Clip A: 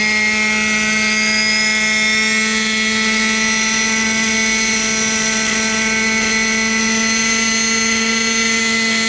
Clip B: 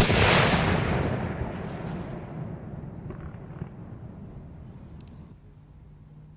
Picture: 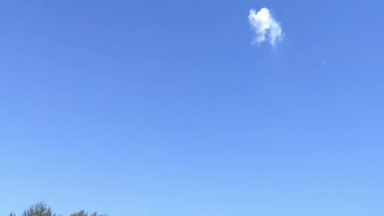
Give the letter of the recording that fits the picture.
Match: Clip B